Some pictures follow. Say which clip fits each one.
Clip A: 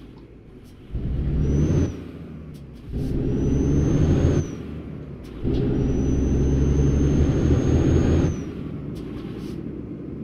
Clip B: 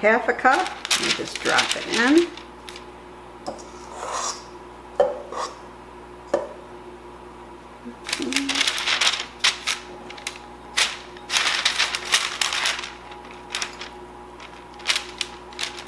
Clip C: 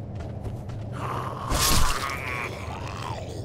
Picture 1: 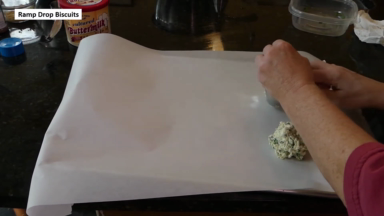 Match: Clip B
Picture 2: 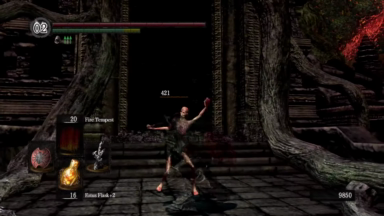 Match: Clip C